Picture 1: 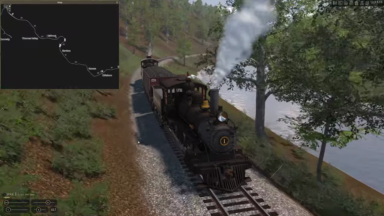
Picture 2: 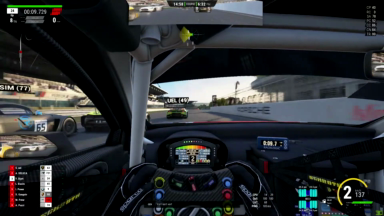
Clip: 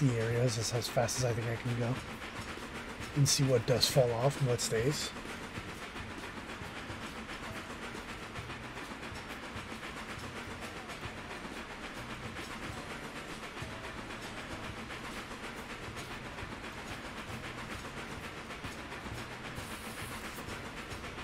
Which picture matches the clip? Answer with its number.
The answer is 1